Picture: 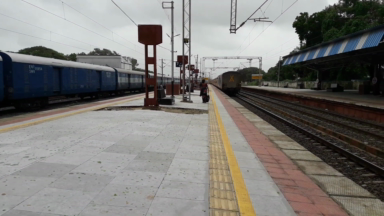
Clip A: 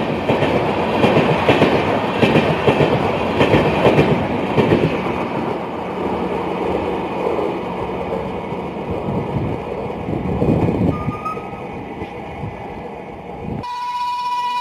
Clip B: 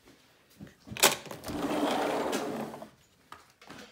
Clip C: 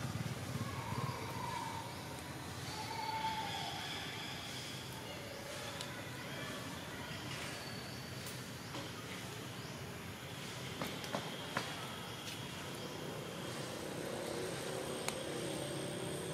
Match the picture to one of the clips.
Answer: A